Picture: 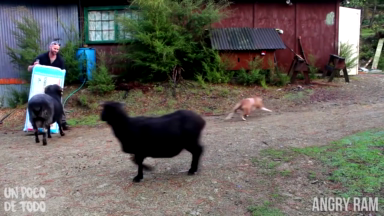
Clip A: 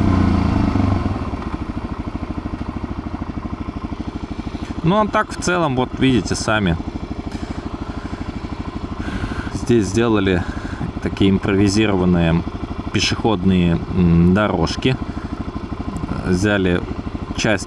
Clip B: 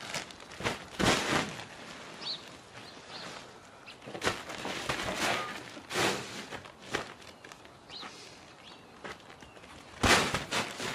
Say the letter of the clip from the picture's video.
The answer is B